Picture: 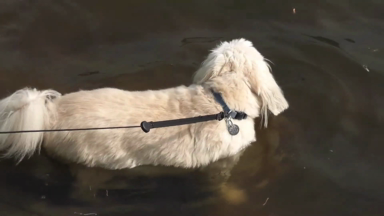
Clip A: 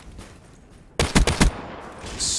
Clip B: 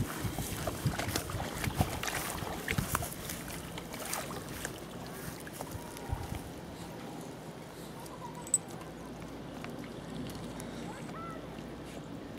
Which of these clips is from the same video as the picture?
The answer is B